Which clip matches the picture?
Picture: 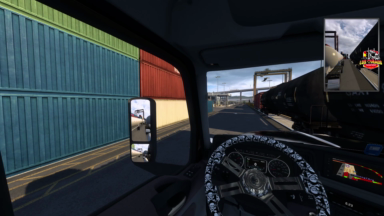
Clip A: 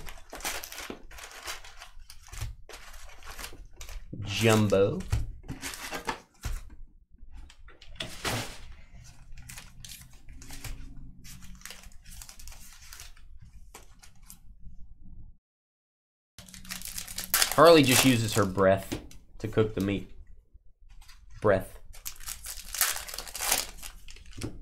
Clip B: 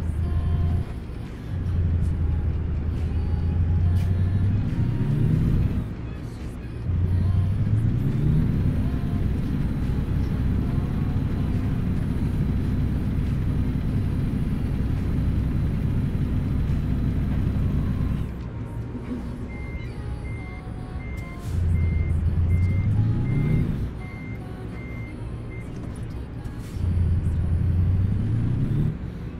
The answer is B